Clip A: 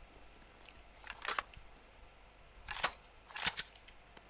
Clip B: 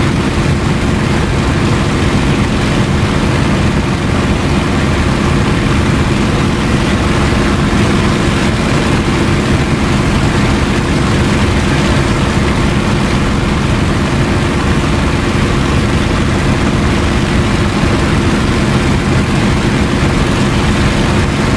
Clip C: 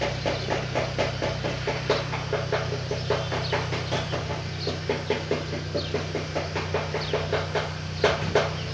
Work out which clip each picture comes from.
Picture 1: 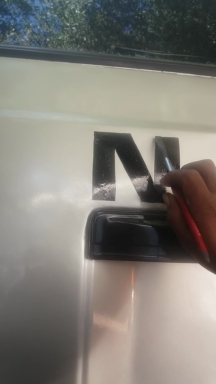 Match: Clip C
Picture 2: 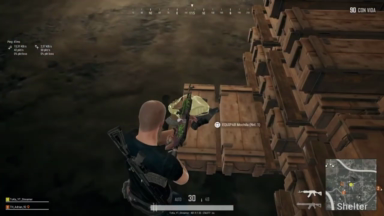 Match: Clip A